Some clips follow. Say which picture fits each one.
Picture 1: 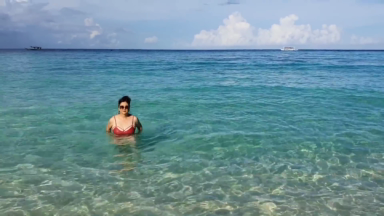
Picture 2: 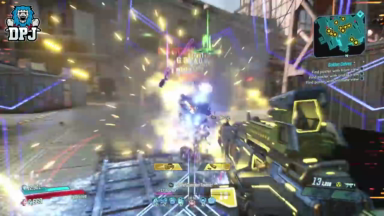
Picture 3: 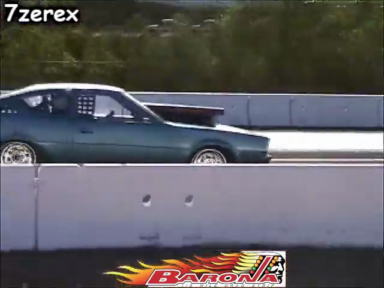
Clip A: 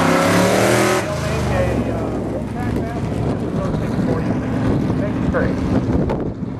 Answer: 3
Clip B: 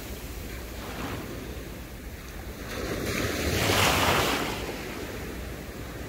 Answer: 1